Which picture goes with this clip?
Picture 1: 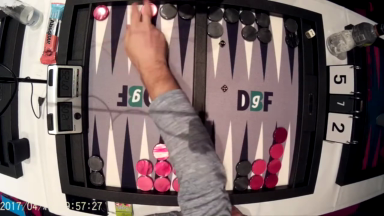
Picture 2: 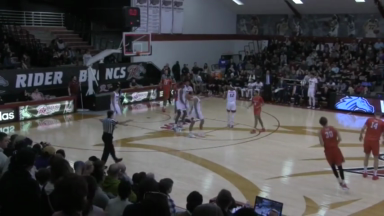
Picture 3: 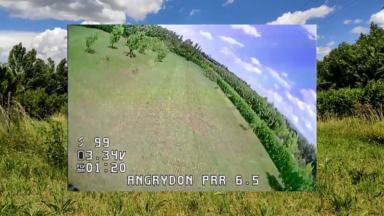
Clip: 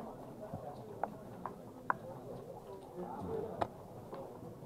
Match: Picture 1